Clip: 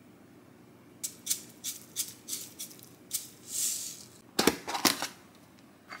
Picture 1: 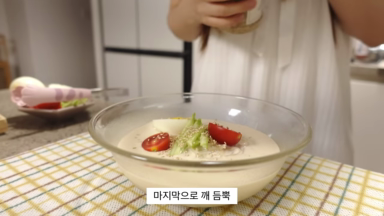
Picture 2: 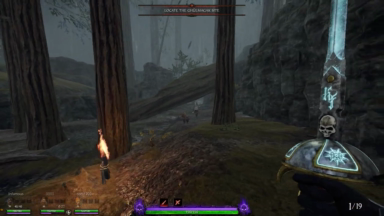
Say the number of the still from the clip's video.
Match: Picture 1